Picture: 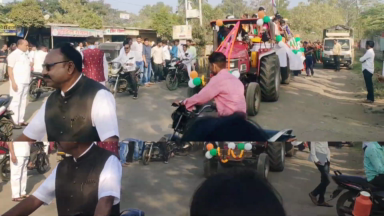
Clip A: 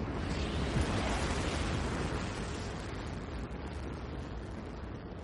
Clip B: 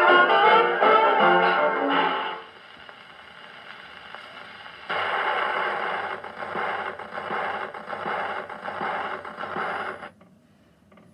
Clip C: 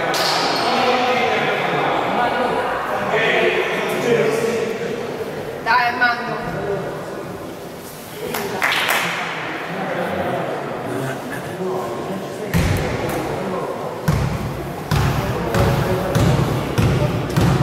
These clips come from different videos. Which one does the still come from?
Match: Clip A